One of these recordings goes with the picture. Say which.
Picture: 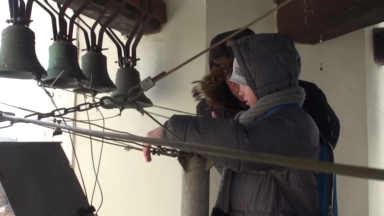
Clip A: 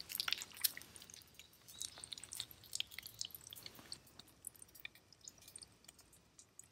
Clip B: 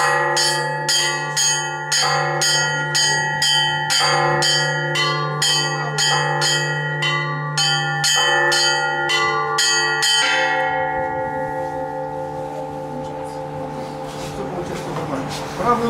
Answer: B